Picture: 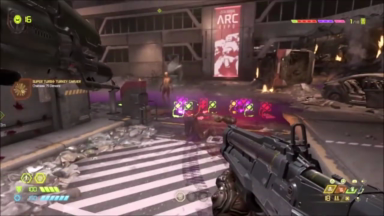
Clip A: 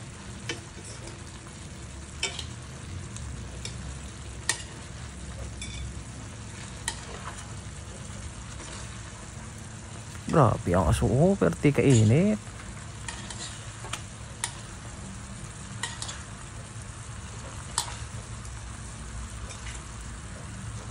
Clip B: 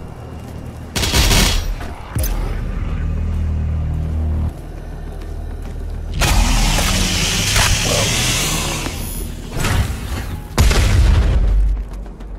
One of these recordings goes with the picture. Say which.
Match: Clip B